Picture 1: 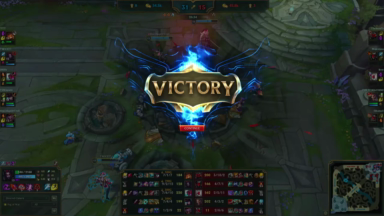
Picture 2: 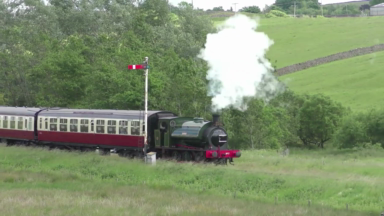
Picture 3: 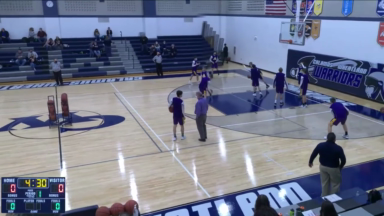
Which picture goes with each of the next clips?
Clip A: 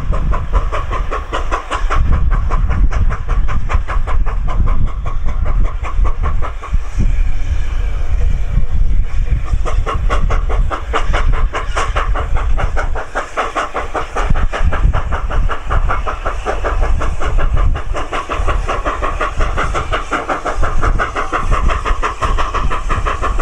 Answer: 2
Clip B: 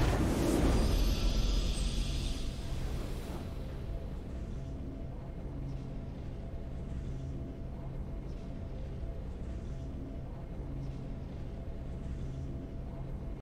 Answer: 1